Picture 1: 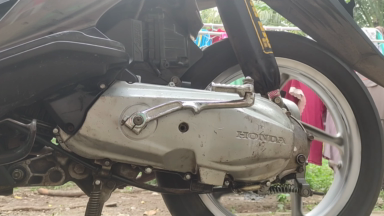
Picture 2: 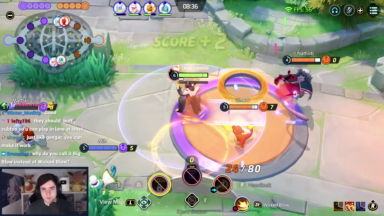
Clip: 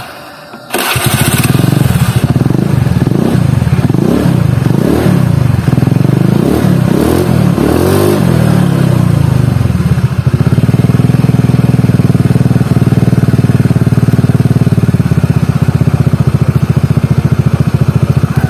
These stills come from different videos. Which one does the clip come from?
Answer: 1